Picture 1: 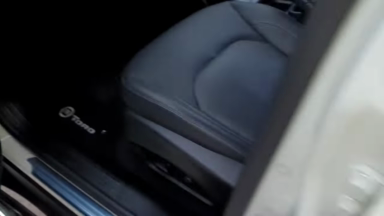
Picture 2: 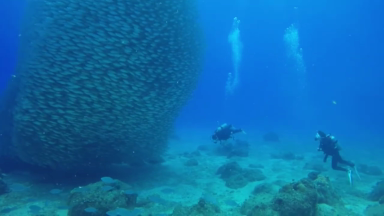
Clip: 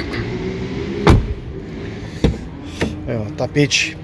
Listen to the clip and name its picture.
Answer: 1